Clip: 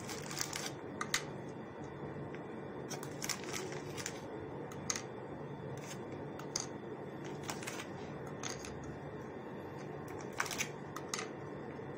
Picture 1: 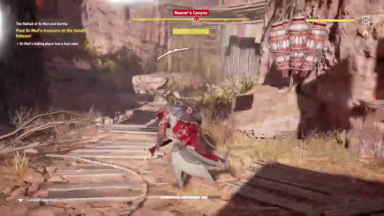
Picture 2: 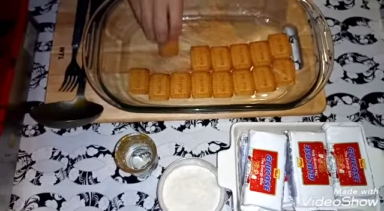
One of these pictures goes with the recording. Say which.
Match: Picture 2